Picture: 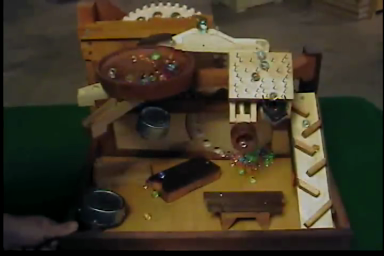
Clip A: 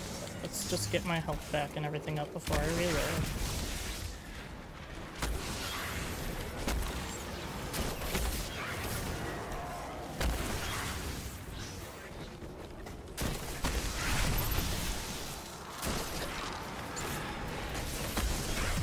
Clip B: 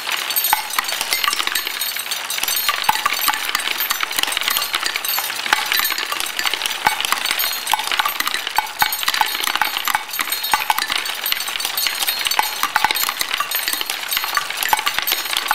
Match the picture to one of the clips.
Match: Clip B